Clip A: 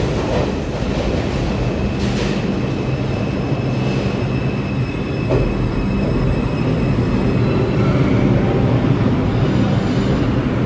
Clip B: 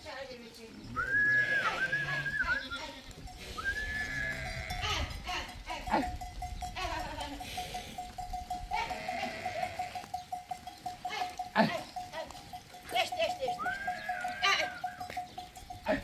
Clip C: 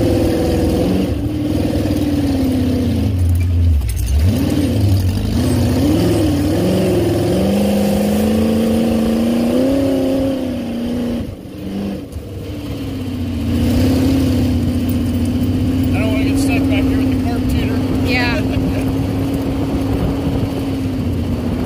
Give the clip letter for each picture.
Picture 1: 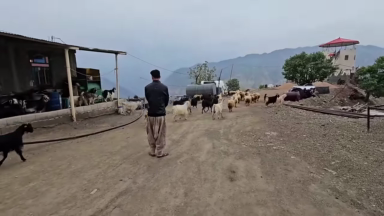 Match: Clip B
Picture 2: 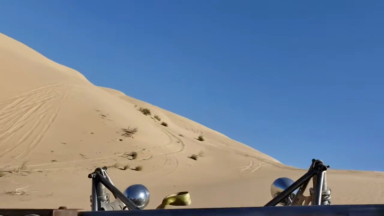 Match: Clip C